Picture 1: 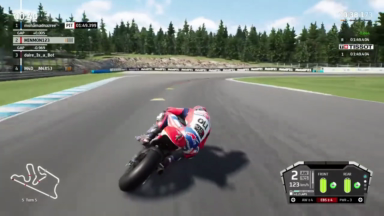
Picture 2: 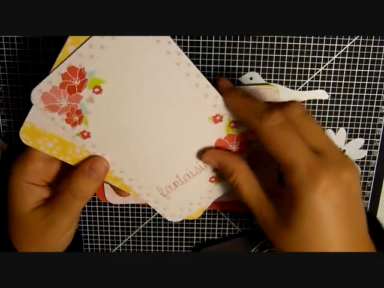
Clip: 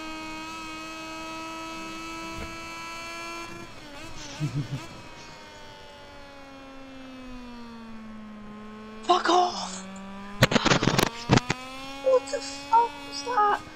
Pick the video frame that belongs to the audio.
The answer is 1